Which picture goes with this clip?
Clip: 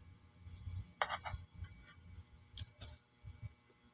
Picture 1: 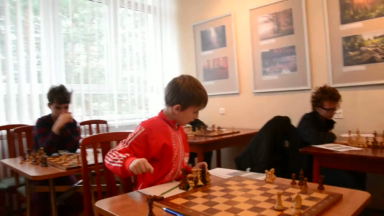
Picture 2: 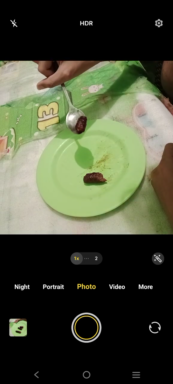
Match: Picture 2